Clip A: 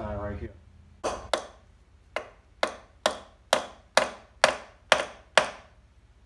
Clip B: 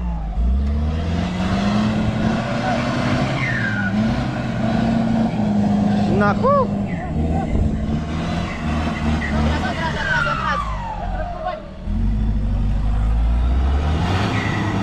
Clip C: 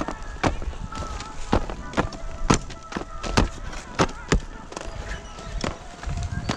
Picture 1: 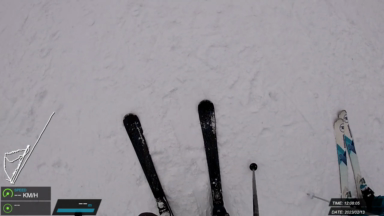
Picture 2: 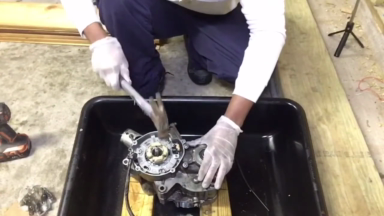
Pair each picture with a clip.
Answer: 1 C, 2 A